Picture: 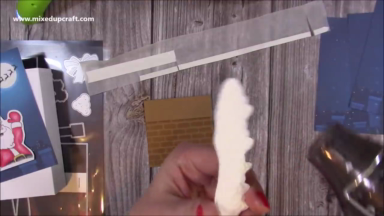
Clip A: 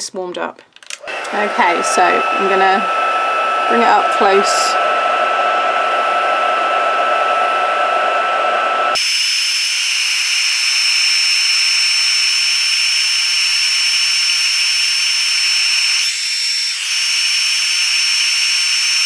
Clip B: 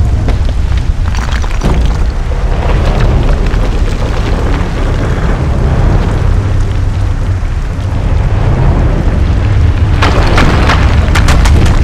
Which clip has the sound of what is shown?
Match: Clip A